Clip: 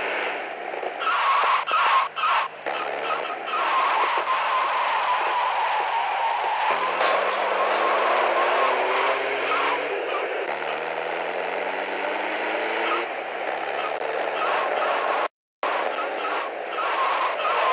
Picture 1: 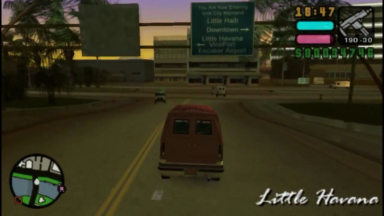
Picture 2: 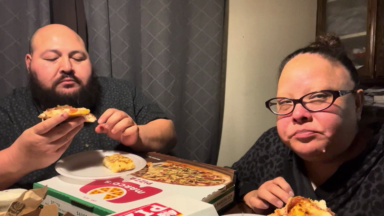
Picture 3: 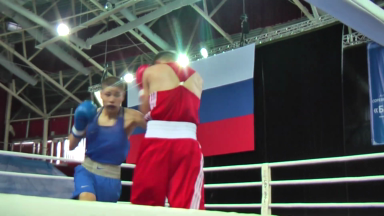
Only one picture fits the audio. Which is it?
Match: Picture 1